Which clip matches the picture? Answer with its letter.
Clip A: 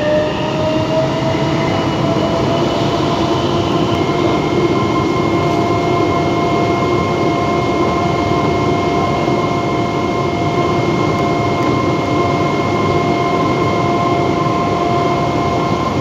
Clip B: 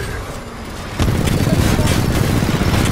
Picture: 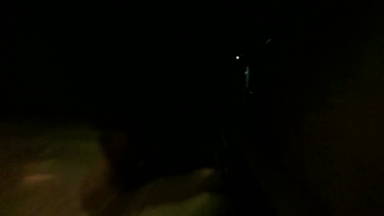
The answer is A